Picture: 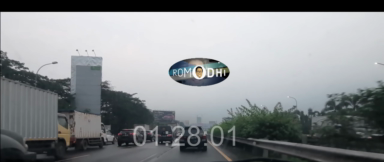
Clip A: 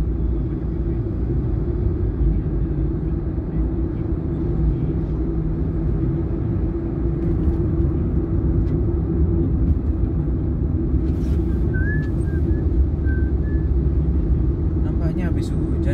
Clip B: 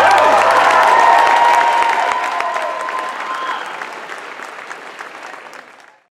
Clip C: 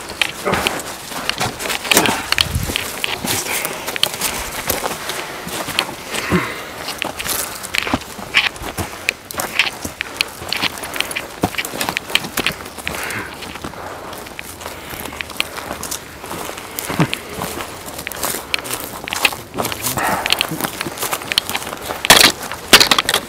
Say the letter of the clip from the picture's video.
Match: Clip A